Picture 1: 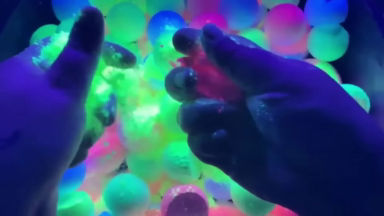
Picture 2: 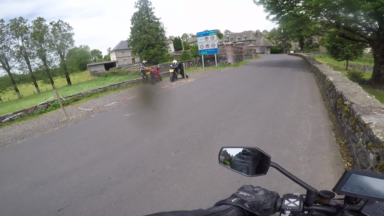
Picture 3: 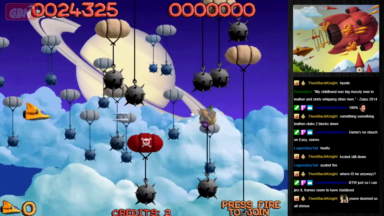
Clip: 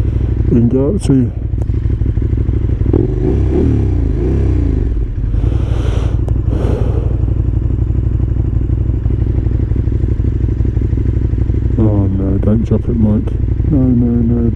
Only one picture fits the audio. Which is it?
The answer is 2